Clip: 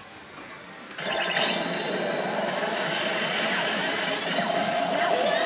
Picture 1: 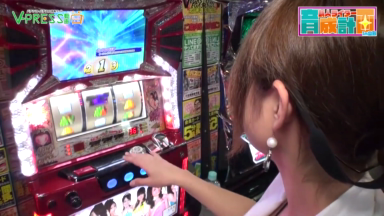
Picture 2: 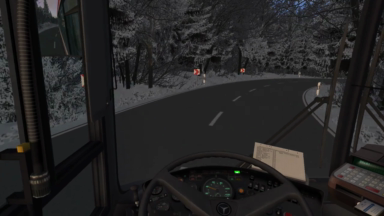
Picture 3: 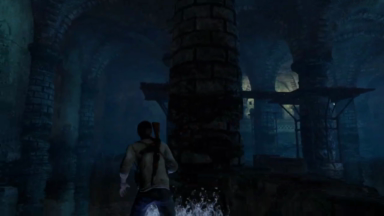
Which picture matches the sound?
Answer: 1